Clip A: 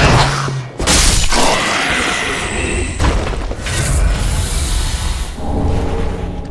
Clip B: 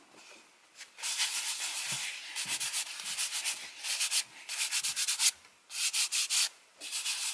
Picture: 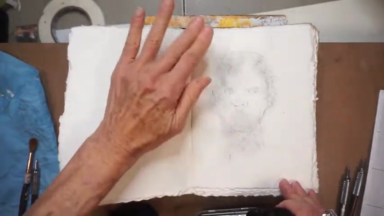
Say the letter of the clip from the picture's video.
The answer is B